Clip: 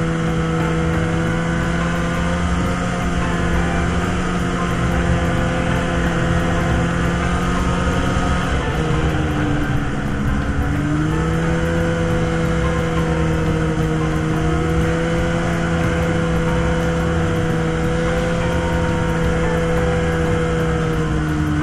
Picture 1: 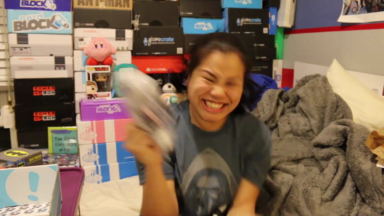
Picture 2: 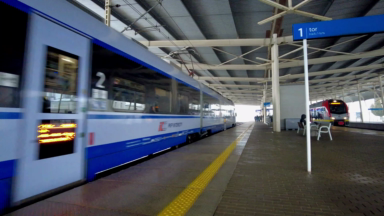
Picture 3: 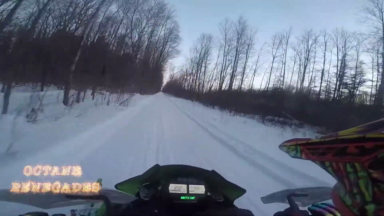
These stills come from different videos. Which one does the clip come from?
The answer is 3